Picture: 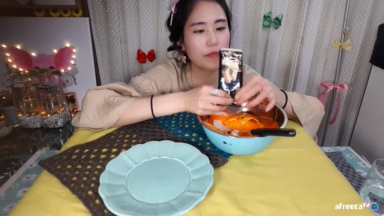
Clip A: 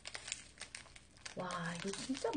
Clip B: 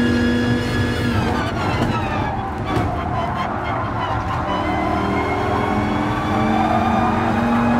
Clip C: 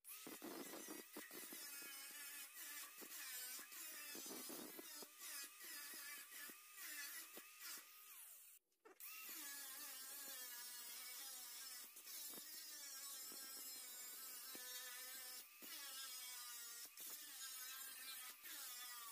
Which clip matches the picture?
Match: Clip A